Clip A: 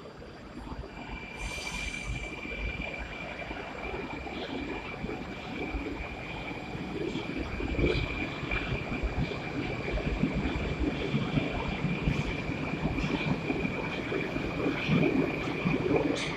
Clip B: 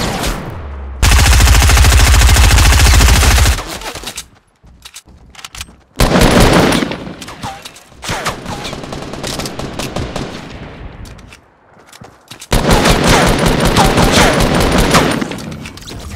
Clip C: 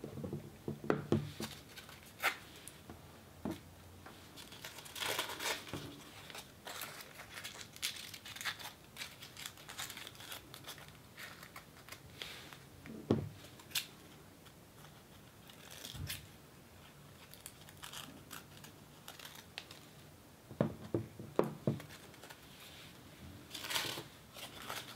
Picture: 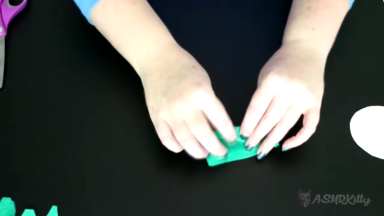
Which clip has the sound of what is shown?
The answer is C